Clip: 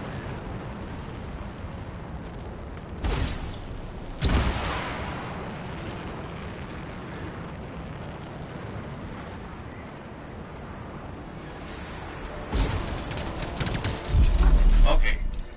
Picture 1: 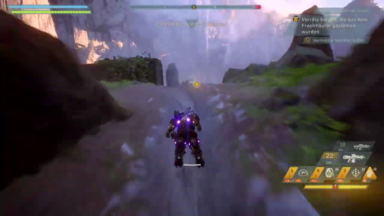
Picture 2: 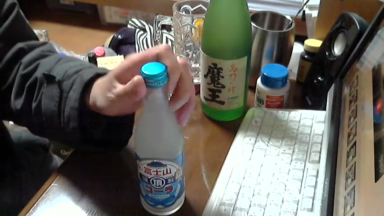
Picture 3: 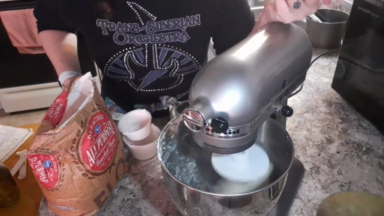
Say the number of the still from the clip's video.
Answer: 1